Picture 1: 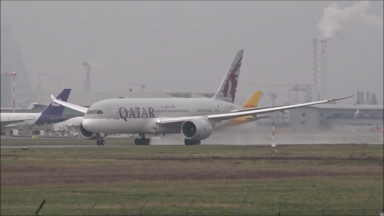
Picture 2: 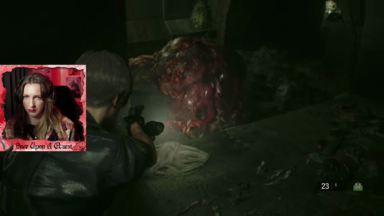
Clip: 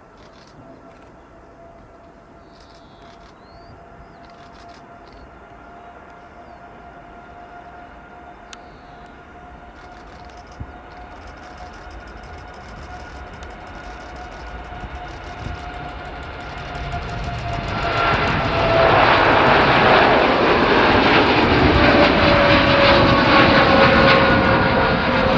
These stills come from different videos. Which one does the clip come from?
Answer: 1